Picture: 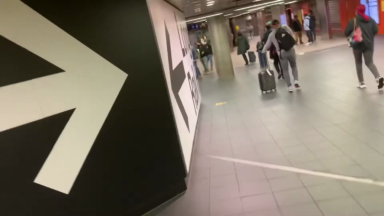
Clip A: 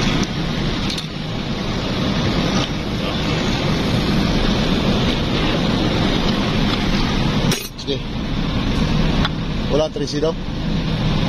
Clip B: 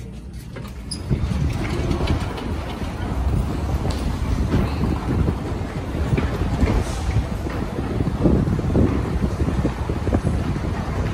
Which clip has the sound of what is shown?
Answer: B